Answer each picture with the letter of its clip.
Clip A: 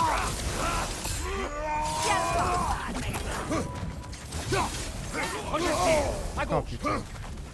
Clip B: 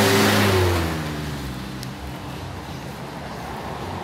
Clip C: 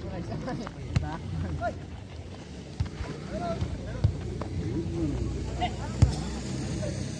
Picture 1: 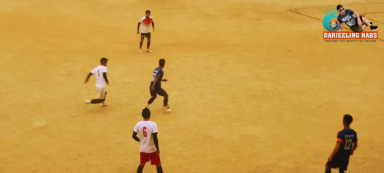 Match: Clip C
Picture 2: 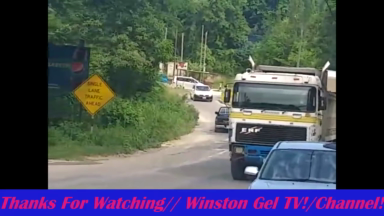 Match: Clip B